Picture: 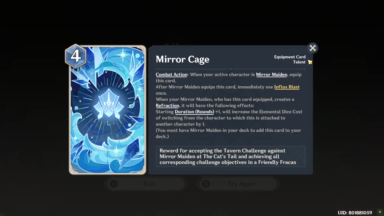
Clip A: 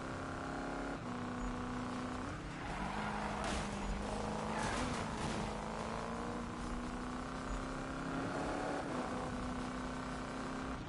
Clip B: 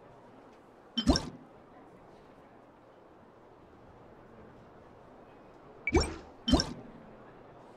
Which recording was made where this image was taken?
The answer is B